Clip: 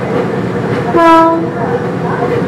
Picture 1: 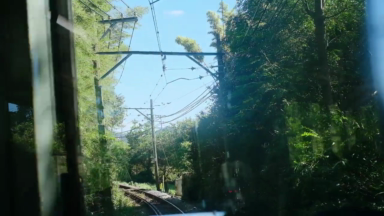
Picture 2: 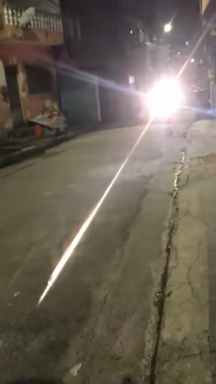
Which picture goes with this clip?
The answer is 1